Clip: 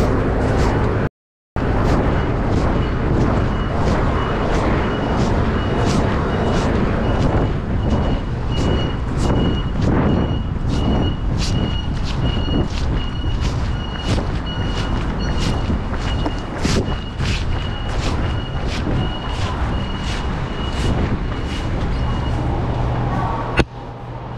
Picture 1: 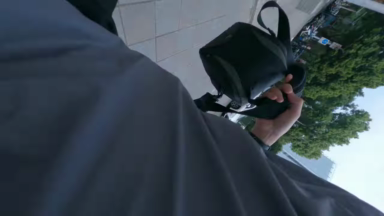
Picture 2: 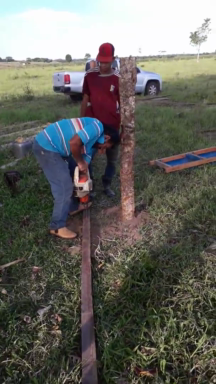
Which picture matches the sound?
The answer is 1